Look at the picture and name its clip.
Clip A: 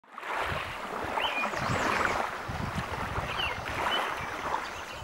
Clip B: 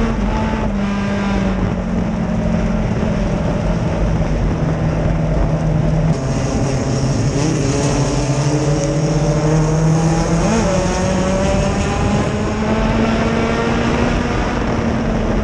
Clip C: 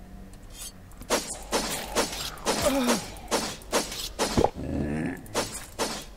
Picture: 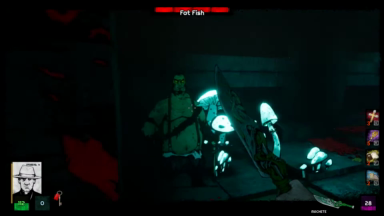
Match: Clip C